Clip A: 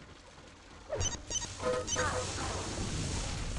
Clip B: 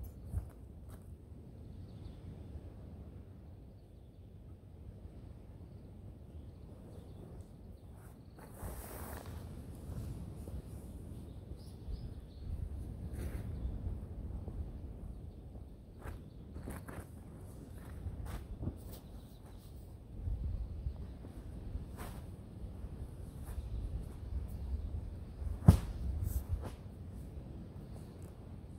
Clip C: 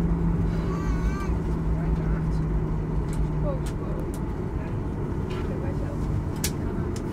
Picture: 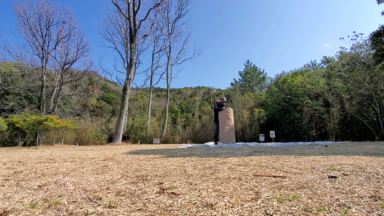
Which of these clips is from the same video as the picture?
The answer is B